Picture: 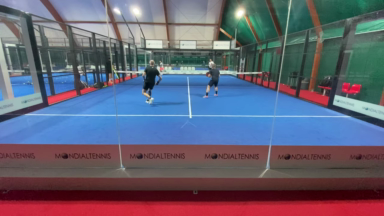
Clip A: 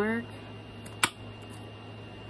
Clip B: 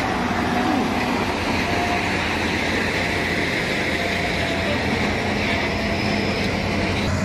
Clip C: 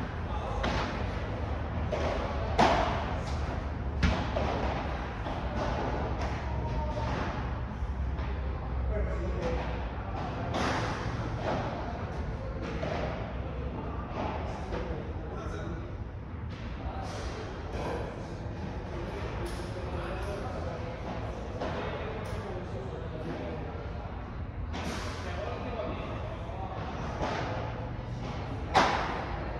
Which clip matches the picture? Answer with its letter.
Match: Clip C